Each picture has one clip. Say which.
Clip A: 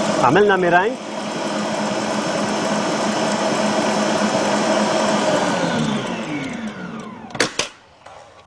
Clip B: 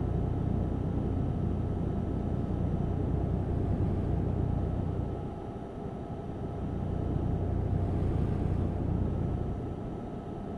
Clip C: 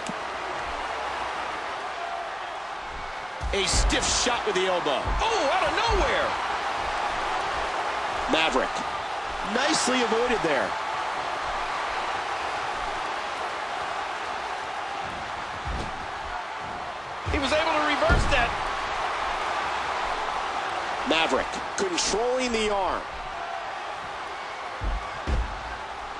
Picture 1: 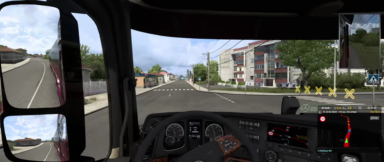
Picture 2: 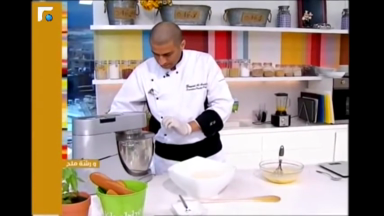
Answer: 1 B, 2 A